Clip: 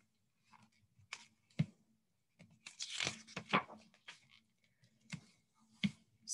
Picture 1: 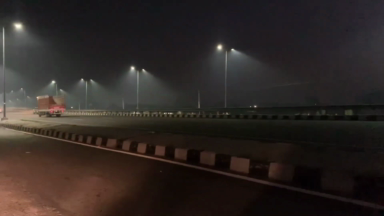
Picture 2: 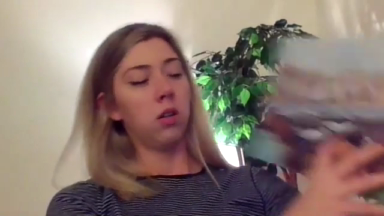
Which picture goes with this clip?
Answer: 2